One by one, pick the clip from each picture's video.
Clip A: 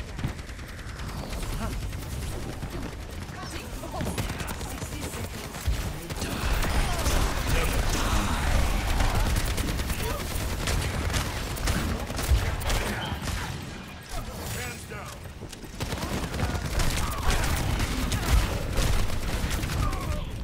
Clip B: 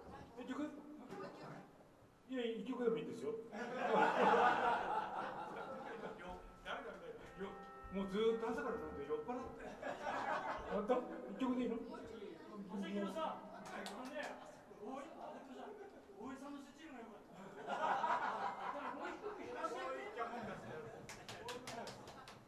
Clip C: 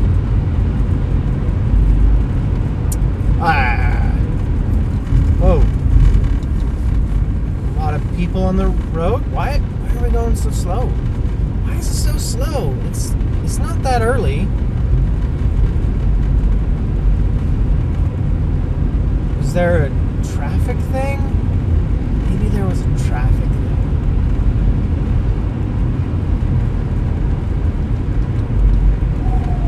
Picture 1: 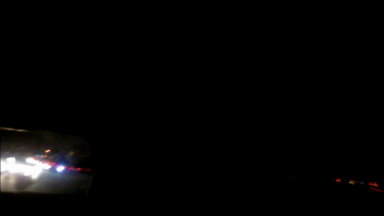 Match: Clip C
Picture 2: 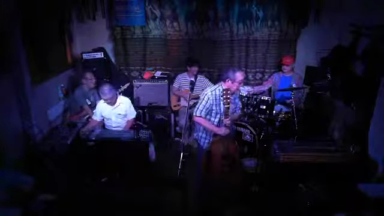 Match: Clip B